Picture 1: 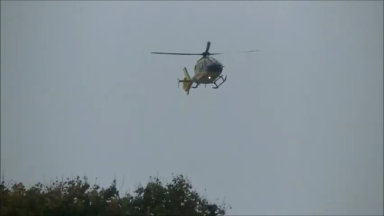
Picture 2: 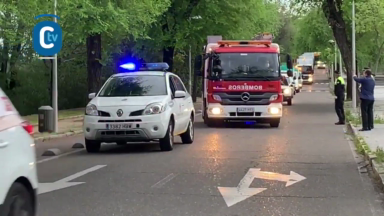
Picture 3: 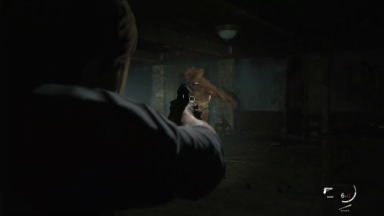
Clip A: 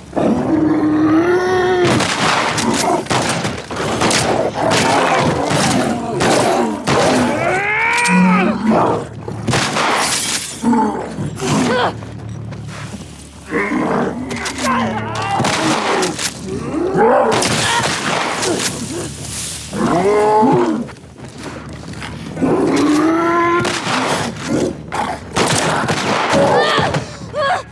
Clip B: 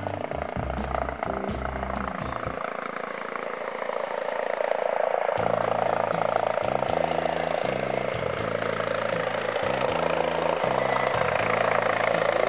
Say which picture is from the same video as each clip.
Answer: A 3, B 1